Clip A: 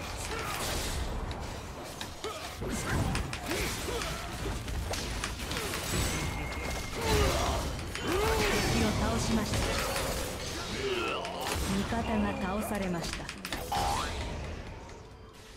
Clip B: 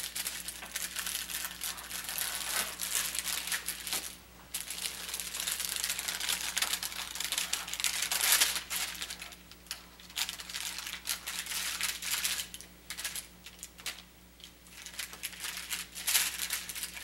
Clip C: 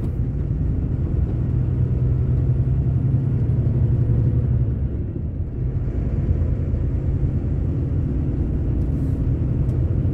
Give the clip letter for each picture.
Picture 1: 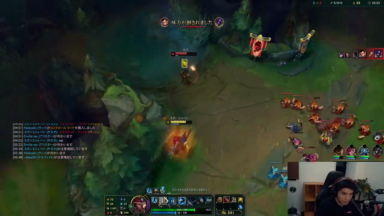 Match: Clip A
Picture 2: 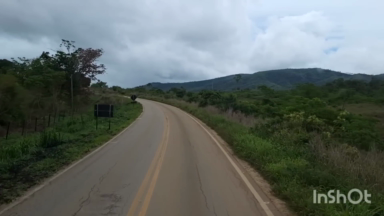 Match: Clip C